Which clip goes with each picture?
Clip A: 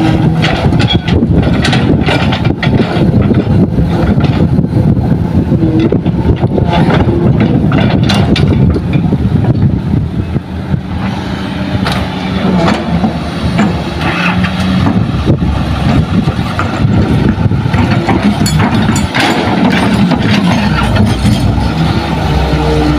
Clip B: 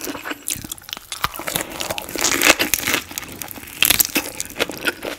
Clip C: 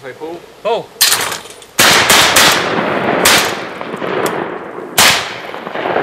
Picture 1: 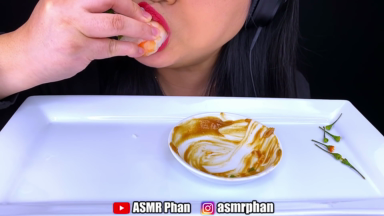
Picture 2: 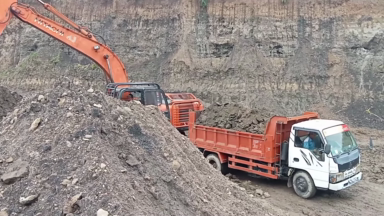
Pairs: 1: B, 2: A